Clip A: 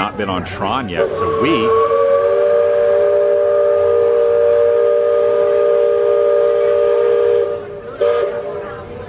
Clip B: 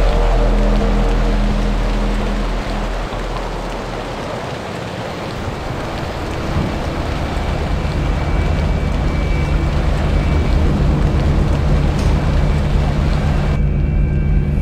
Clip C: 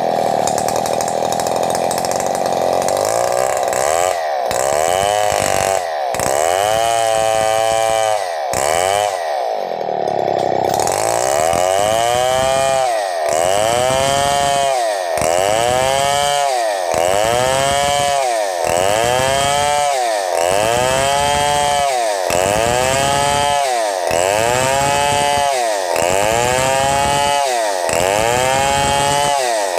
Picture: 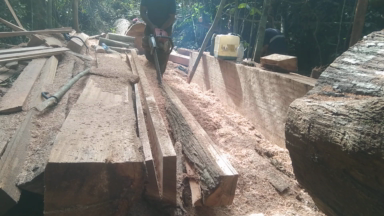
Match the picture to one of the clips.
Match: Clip C